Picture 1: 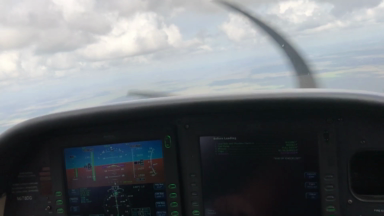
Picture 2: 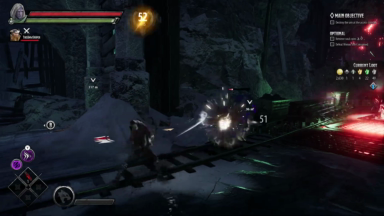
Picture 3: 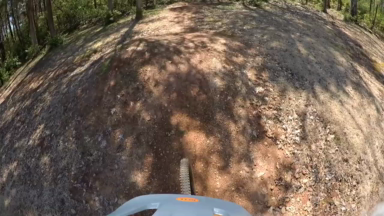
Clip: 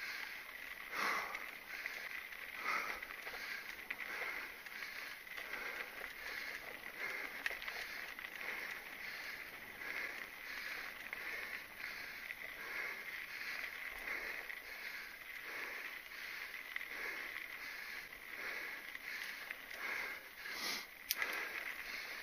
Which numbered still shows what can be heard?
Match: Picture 3